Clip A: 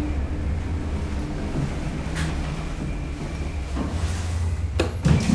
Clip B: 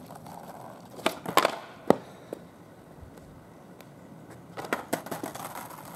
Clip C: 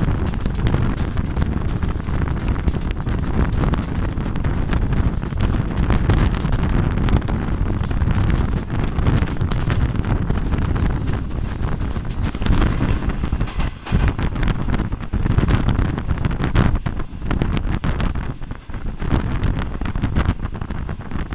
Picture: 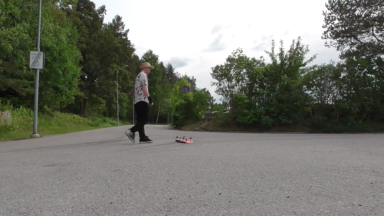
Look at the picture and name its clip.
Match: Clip B